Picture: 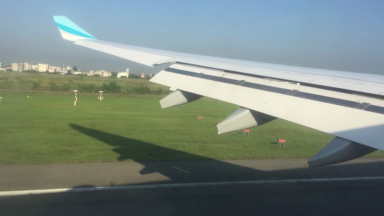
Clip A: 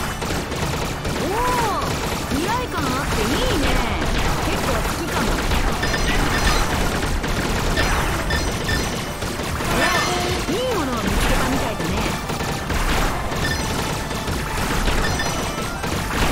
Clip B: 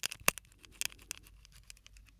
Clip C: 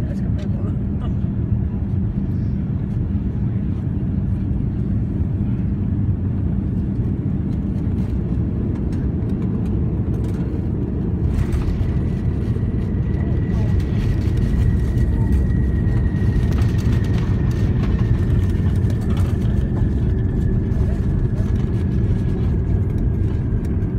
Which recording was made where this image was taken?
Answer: C